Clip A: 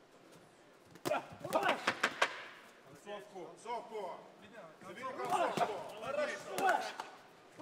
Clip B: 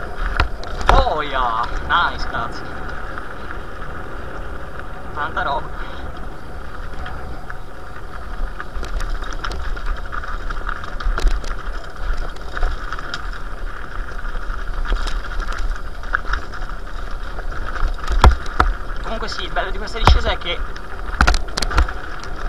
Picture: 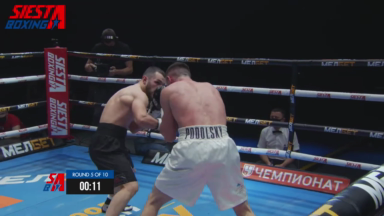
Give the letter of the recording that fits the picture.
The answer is A